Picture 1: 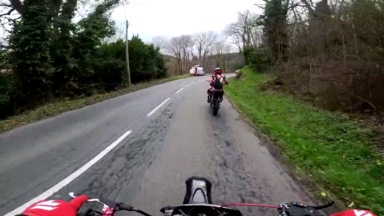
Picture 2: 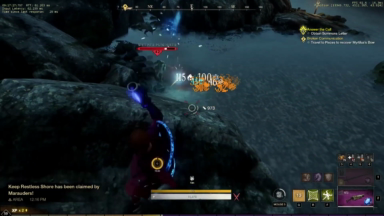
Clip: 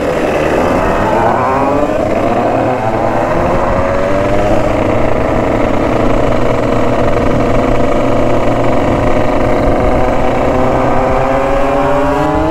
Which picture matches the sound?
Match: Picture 1